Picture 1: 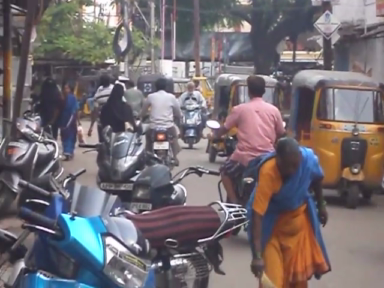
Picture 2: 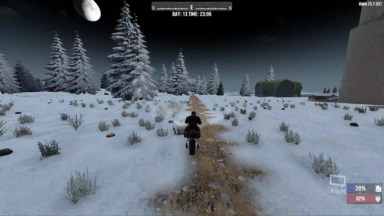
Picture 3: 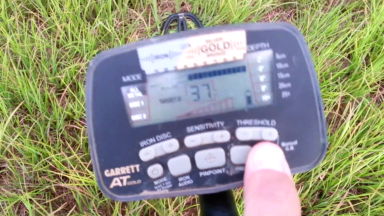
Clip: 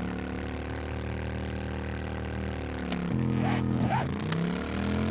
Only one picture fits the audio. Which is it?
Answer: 2